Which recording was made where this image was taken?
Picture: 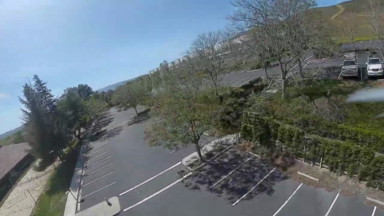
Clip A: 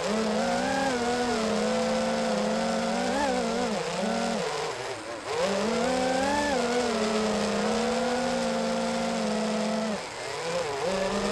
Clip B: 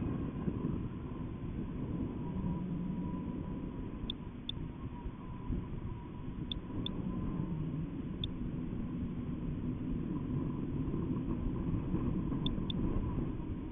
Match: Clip A